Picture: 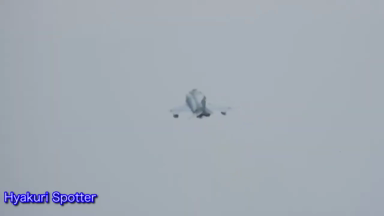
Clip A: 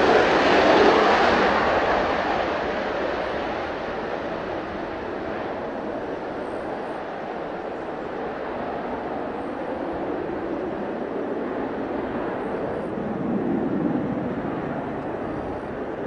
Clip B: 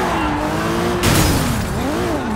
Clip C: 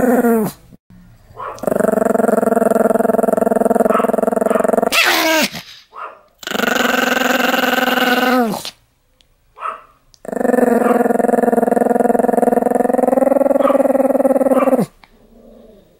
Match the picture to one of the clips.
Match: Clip A